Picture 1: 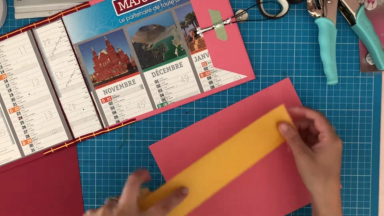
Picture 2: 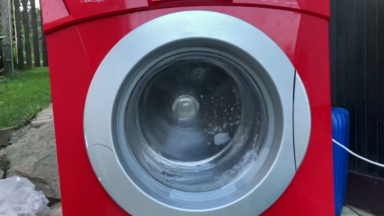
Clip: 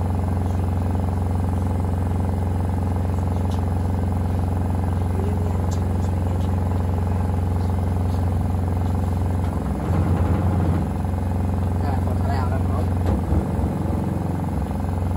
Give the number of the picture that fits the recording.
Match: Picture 2